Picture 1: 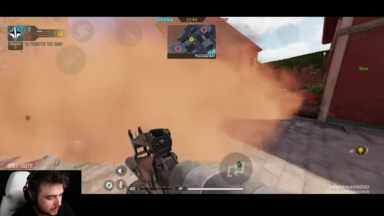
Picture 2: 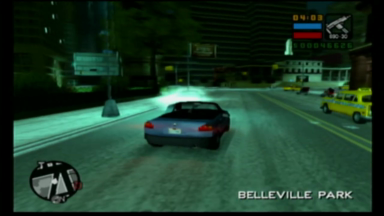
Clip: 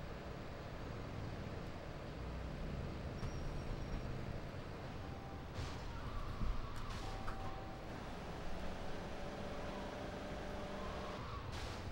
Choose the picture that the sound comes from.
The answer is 2